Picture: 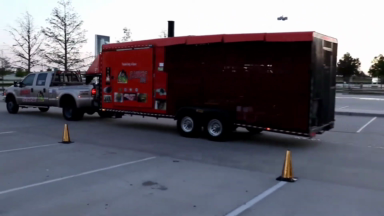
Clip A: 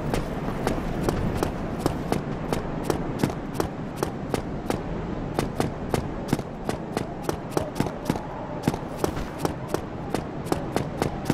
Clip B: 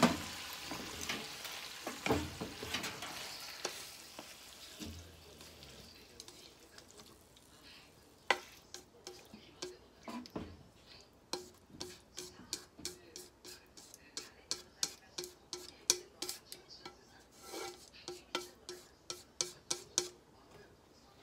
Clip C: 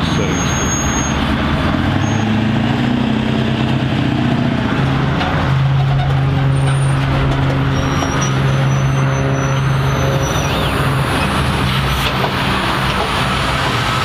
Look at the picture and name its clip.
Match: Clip C